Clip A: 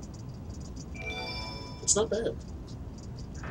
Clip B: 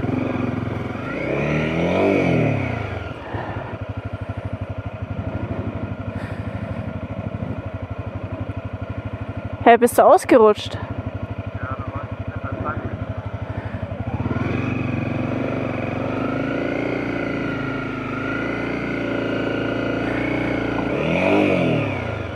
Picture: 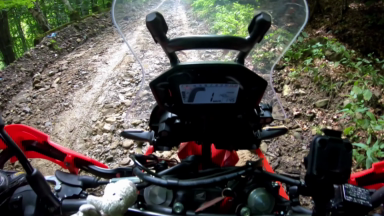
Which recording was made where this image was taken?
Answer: B